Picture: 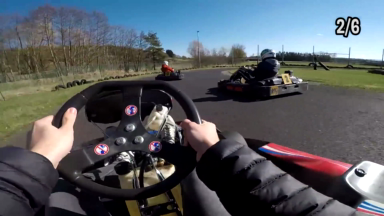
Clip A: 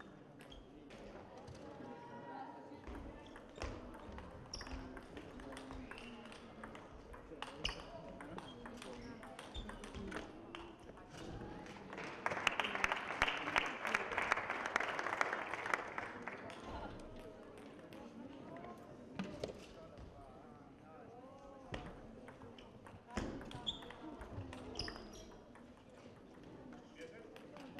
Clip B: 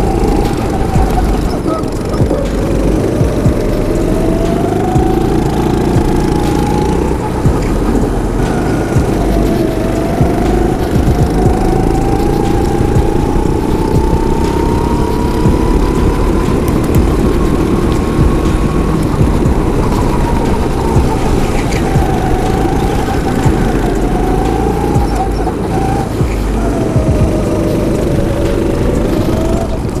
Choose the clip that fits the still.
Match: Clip B